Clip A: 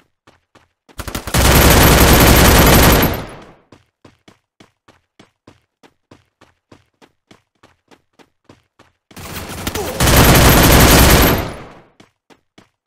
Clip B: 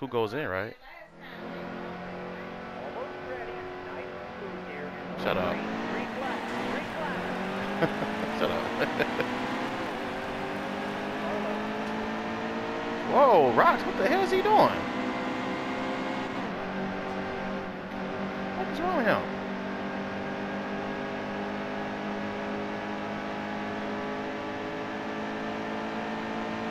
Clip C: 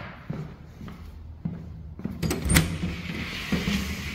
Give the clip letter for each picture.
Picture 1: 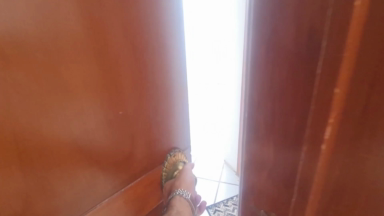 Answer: C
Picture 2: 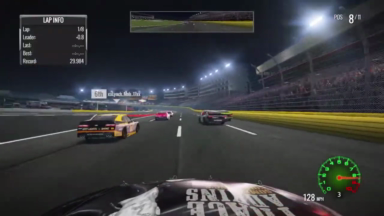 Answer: B